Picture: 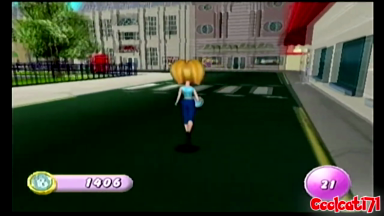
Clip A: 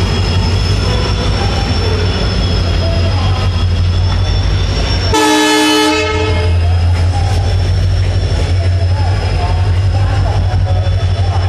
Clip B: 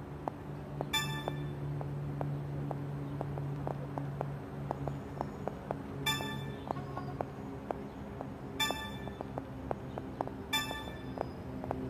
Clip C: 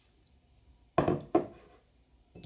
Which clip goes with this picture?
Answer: B